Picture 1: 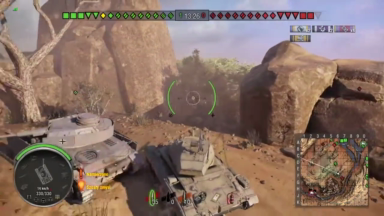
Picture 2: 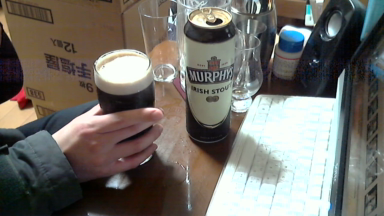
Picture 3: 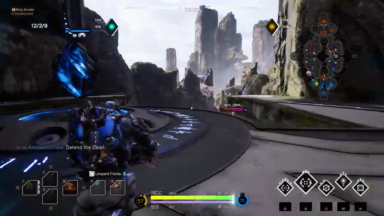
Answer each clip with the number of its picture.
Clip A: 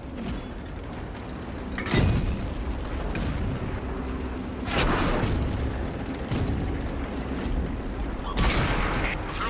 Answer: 1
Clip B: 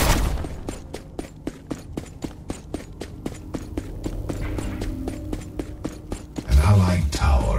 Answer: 3